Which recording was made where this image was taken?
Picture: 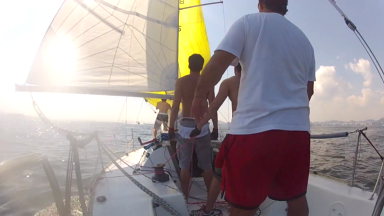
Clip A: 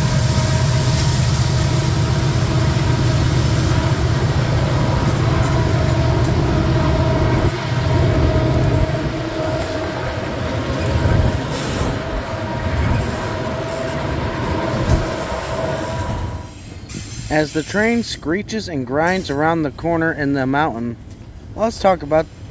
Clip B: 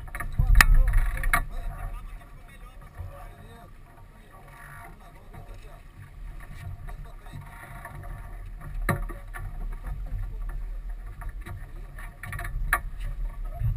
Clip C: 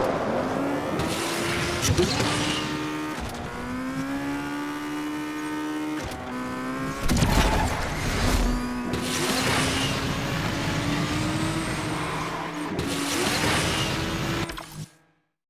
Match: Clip B